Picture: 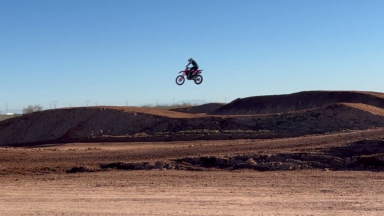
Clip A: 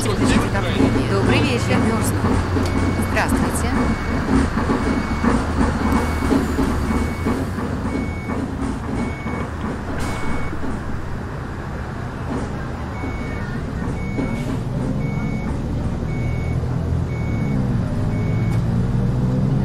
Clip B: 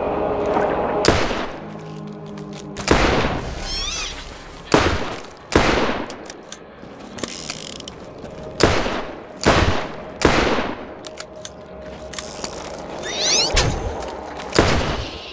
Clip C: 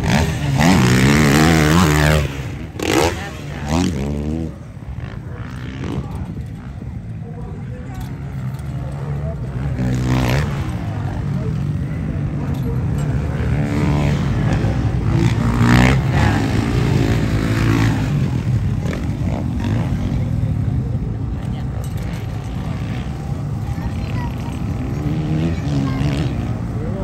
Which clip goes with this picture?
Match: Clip C